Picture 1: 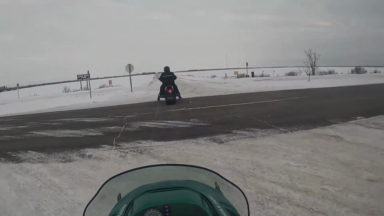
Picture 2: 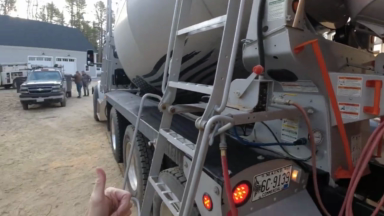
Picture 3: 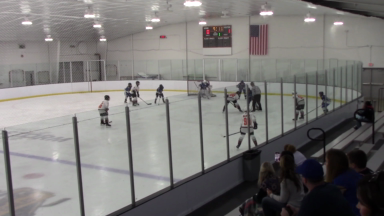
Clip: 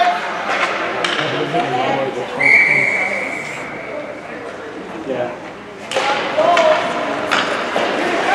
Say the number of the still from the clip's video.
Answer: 3